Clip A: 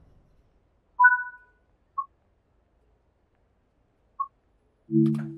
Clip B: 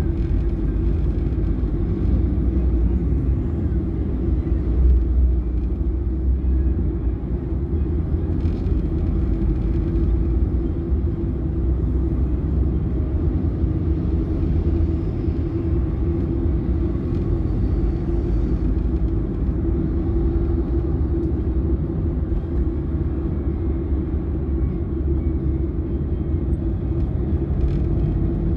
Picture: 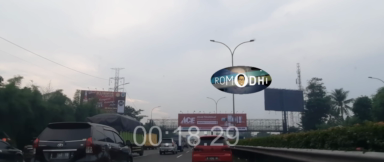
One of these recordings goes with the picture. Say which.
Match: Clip B